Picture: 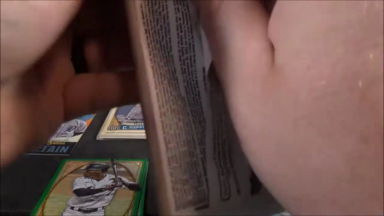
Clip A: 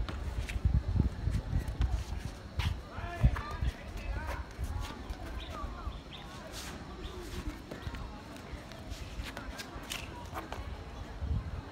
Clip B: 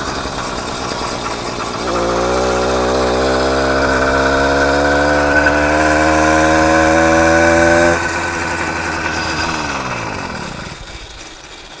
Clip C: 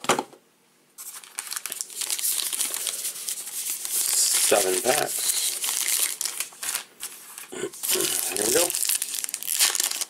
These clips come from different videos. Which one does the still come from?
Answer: C